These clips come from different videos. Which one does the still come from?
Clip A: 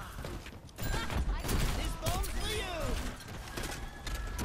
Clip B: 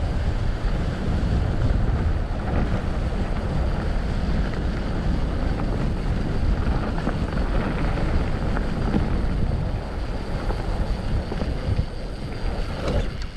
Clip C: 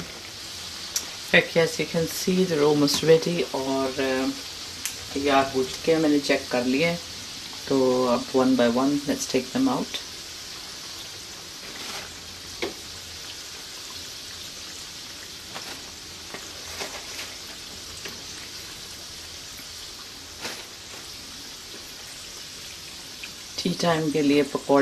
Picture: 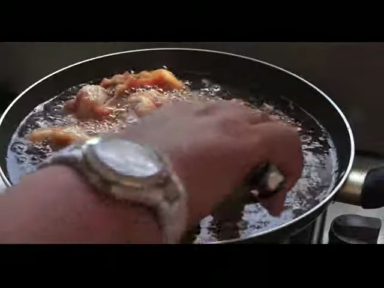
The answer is C